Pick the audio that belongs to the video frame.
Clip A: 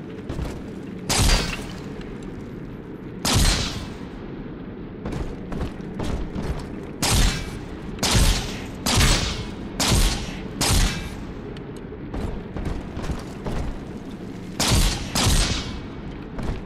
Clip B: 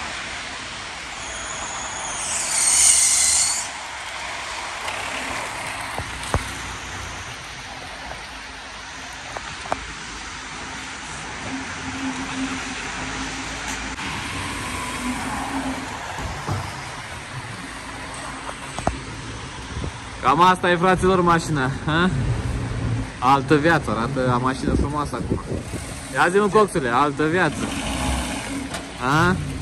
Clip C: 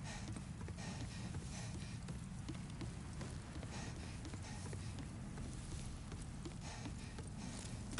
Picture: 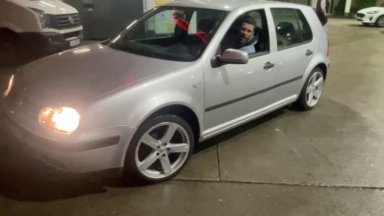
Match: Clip B